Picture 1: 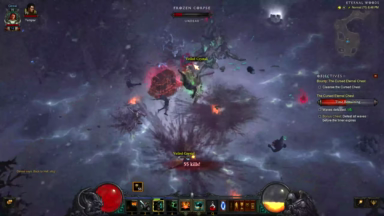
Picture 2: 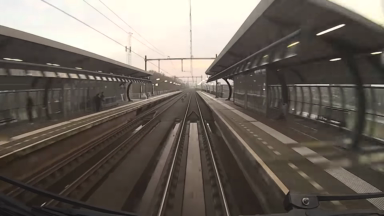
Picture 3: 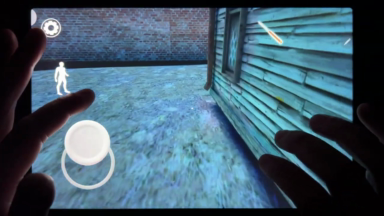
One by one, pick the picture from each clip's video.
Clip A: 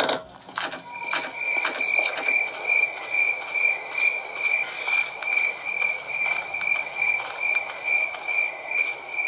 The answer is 3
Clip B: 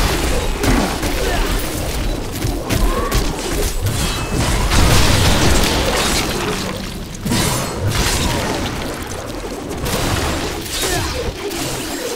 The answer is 1